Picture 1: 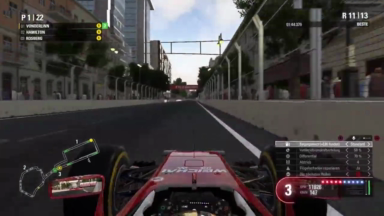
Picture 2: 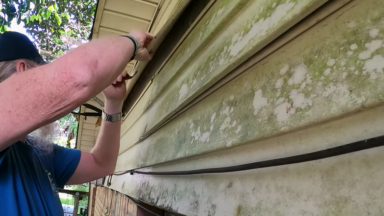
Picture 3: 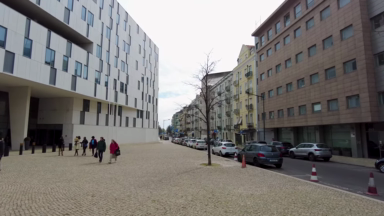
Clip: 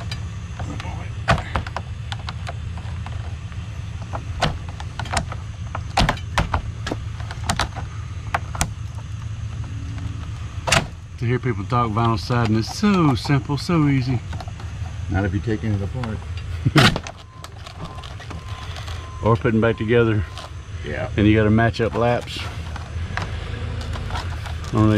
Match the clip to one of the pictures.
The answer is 2